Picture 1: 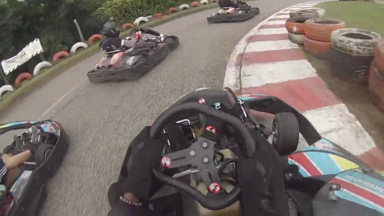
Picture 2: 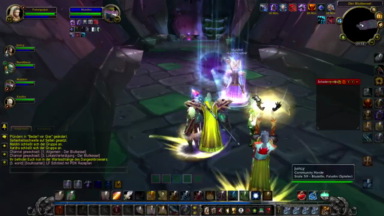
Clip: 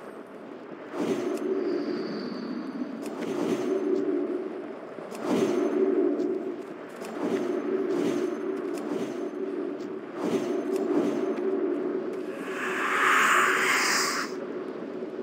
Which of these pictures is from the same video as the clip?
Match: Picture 2